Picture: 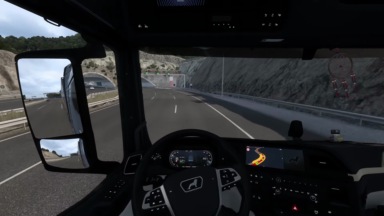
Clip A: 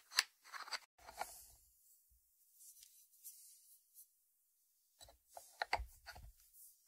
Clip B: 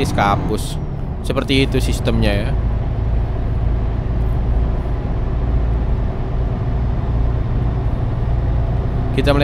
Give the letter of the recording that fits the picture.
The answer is B